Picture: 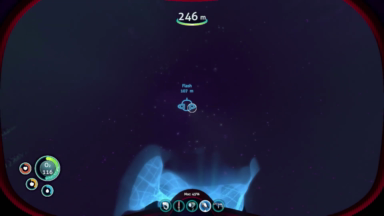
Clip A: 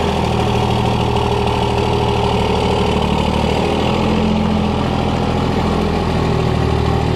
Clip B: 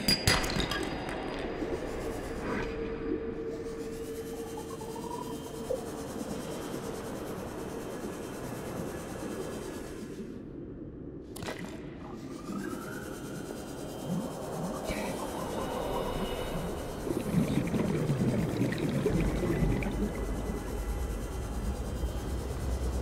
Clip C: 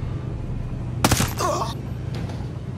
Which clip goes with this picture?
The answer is B